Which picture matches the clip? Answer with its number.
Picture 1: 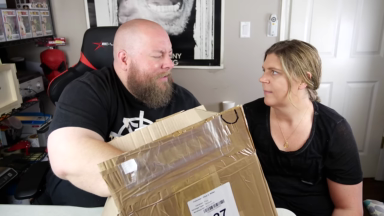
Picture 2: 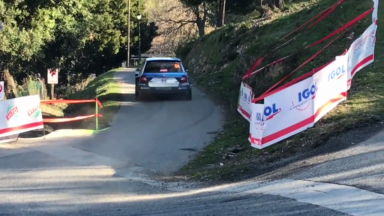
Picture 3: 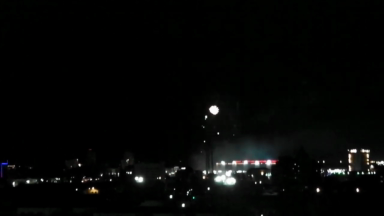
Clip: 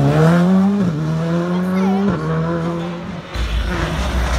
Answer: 2